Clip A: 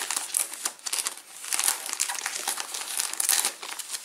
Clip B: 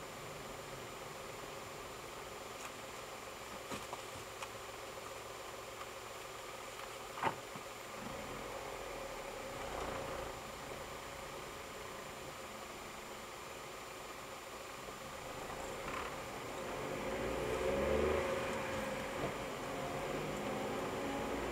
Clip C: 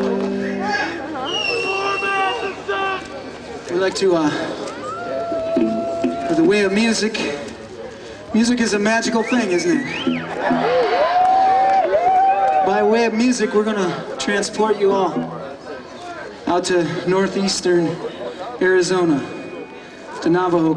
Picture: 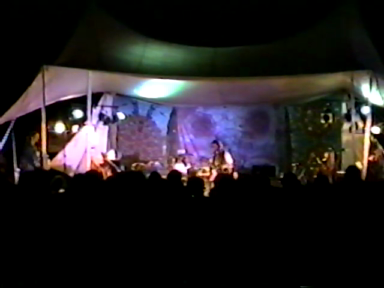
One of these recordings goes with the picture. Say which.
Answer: C